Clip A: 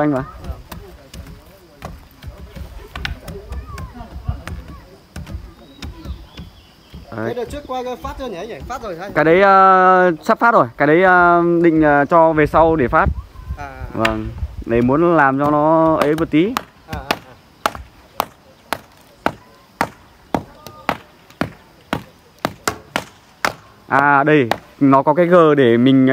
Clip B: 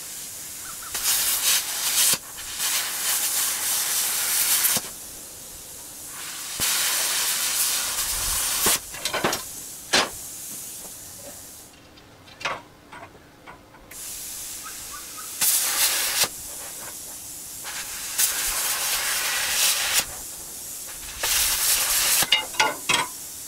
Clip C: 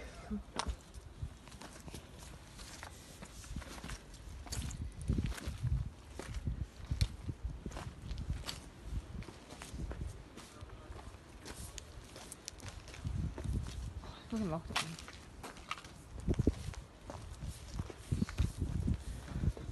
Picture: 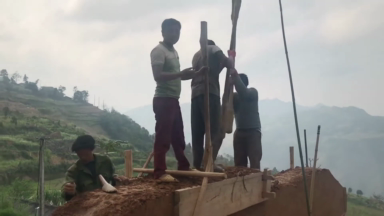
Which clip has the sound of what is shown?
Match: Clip A